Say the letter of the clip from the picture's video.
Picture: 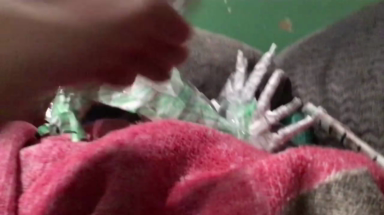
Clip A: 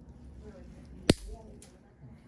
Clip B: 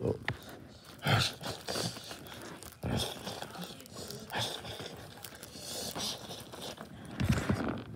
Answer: B